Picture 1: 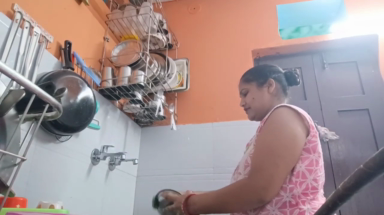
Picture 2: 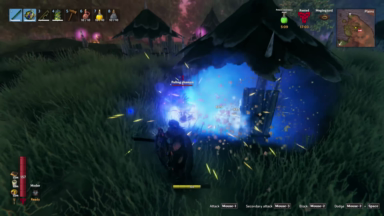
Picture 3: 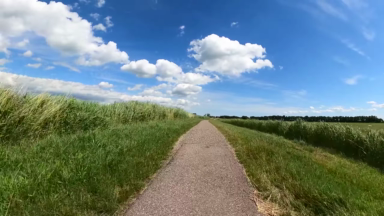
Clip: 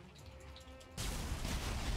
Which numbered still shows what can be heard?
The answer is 2